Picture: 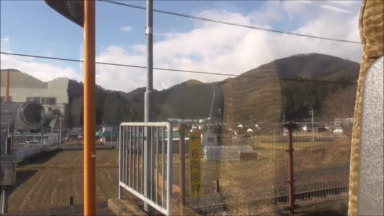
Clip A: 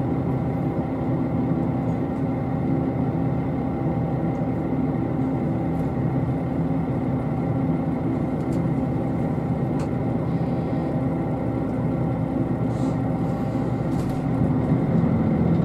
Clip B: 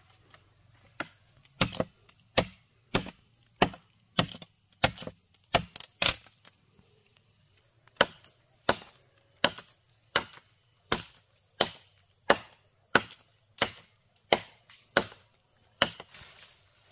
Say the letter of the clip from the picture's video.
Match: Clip A